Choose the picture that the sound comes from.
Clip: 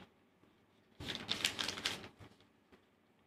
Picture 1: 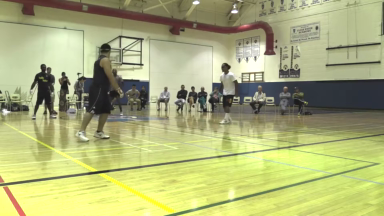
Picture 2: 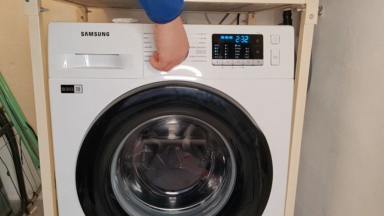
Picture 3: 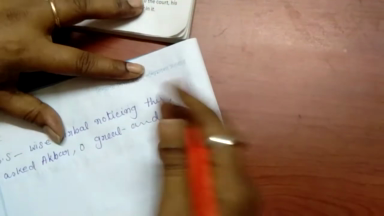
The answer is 3